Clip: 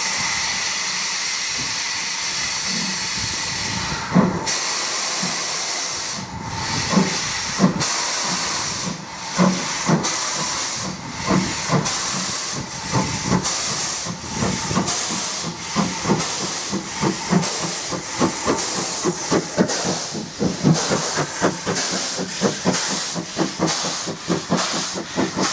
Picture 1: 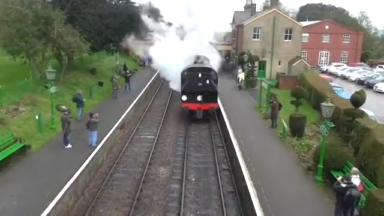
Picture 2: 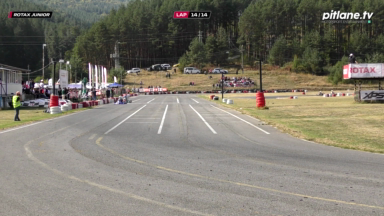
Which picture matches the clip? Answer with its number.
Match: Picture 1